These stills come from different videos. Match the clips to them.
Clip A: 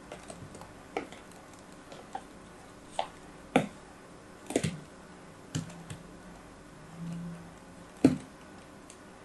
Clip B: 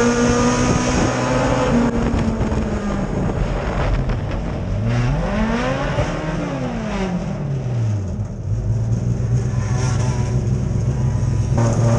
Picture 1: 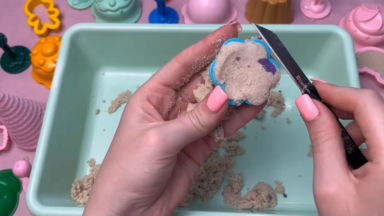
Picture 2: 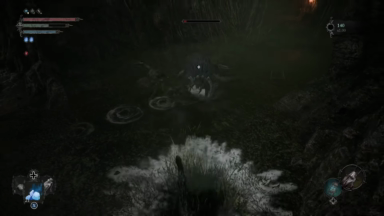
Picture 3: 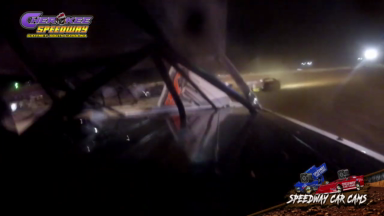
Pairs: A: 1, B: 3